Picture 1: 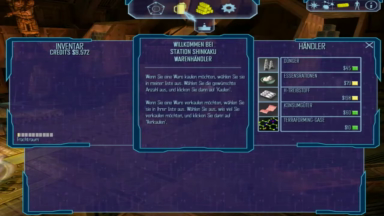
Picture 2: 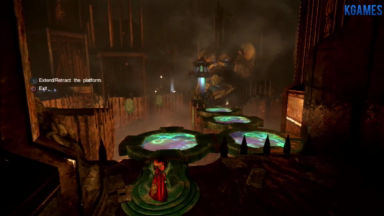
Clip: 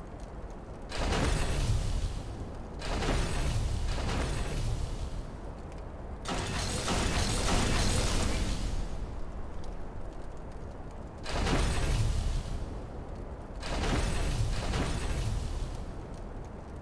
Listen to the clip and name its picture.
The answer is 2